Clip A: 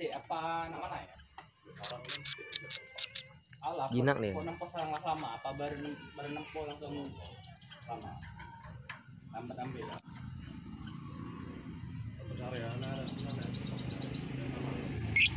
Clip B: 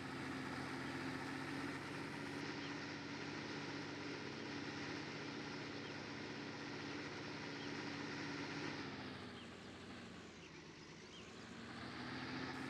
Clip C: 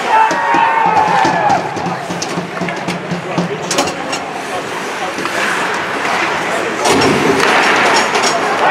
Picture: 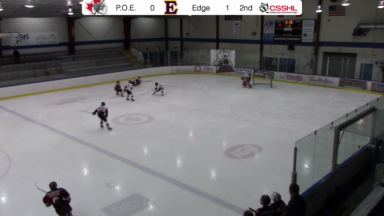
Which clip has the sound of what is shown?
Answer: C